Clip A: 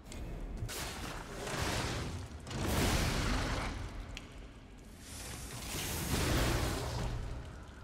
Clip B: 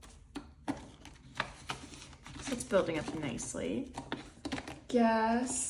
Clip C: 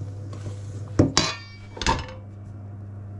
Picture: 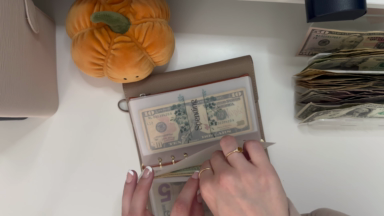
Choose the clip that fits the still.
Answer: B